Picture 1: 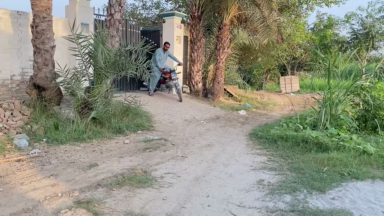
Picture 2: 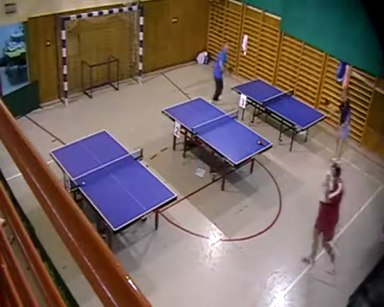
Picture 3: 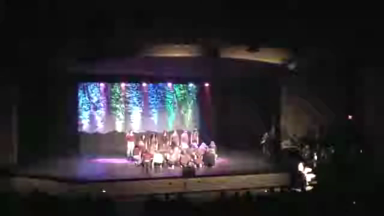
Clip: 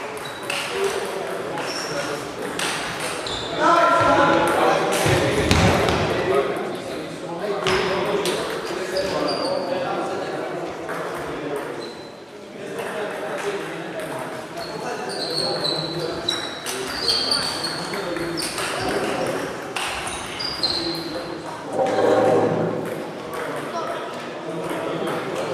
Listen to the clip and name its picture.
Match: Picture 2